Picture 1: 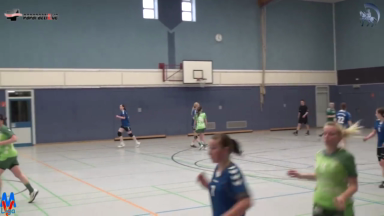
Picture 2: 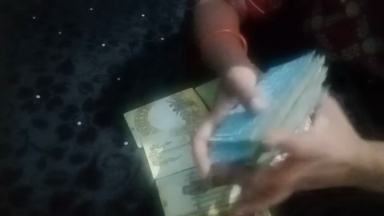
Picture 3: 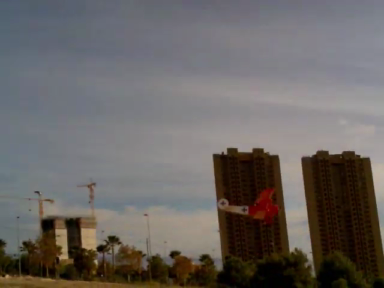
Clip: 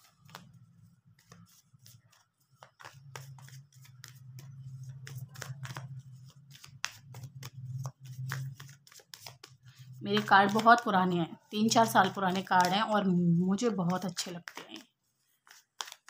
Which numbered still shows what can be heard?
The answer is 2